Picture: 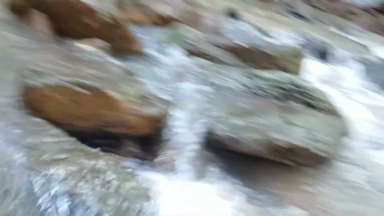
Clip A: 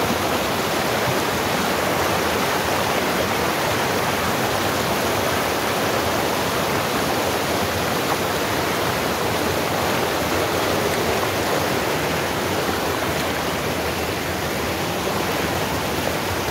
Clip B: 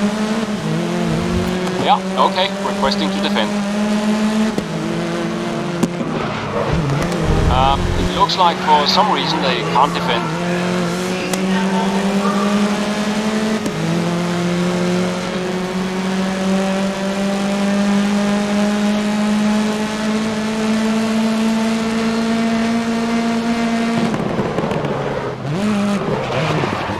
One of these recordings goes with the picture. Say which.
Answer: A